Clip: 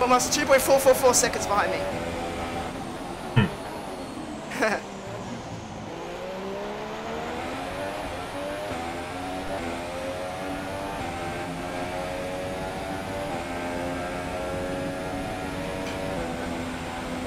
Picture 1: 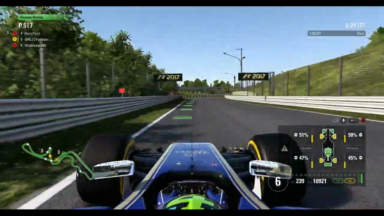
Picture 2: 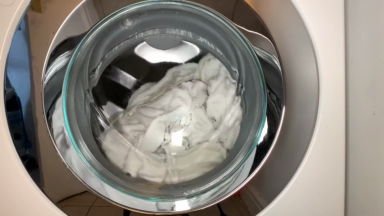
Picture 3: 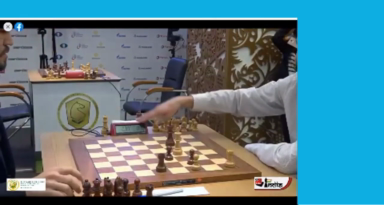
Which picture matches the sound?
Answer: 1